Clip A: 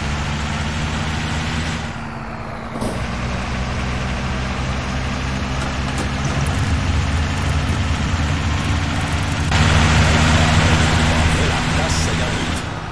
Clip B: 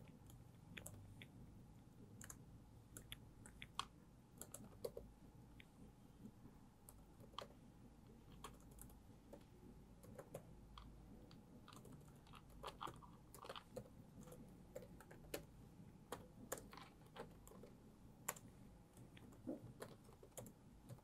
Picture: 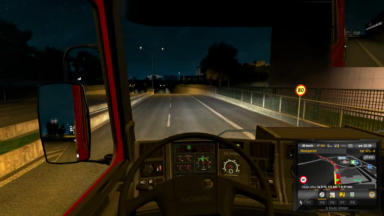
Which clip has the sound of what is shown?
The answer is A